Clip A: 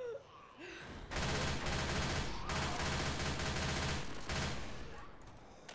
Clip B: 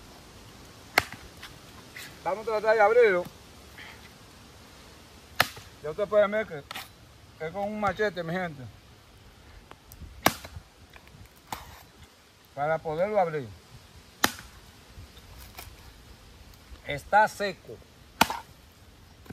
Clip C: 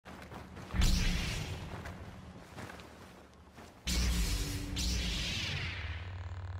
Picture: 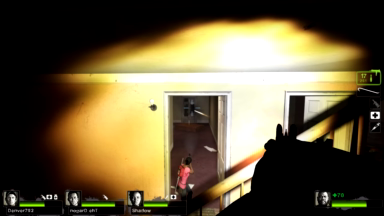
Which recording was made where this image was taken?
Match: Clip A